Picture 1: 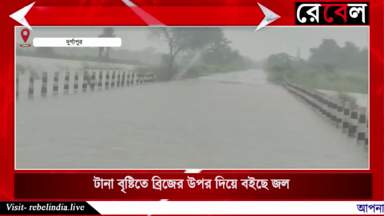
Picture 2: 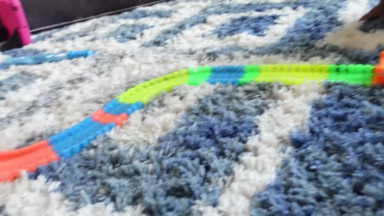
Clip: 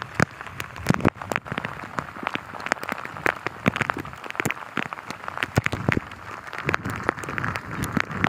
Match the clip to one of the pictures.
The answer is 1